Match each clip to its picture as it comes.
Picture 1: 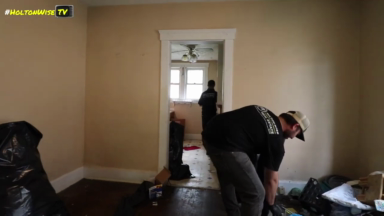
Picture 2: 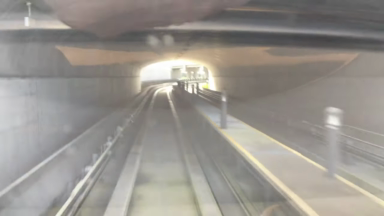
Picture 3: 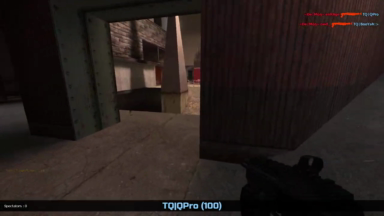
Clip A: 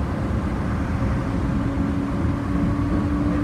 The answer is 2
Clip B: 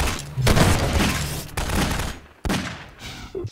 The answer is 3